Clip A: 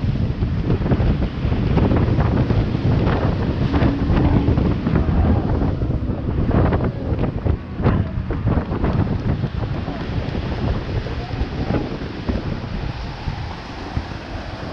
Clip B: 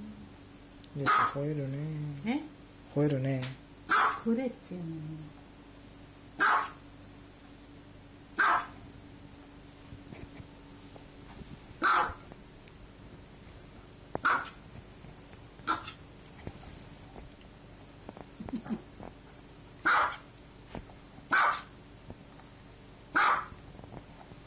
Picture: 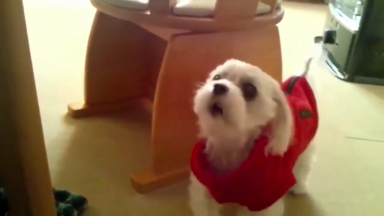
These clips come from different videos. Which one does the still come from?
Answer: B